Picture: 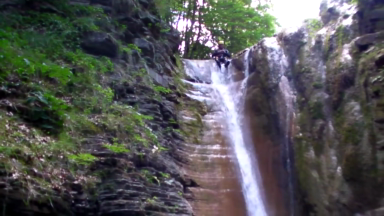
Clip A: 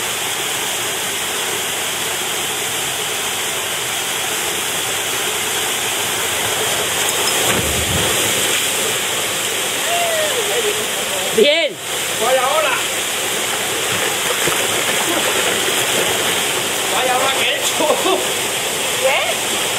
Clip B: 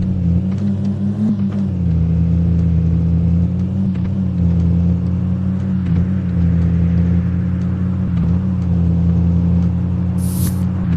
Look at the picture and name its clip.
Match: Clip A